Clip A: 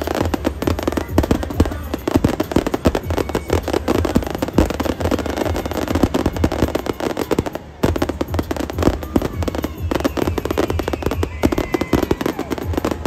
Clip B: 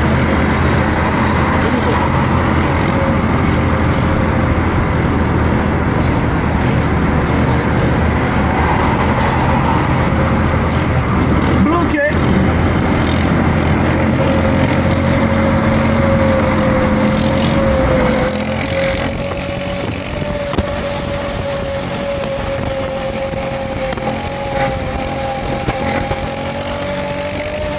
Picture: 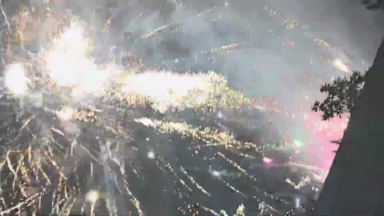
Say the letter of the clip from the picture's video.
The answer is A